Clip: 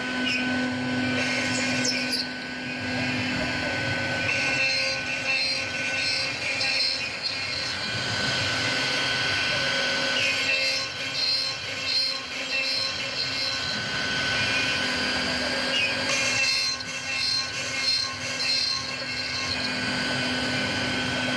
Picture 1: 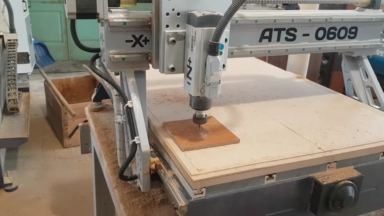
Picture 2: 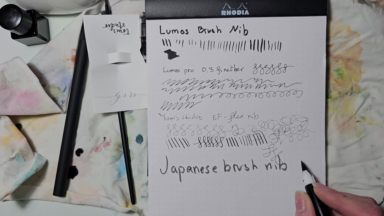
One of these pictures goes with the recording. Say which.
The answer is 1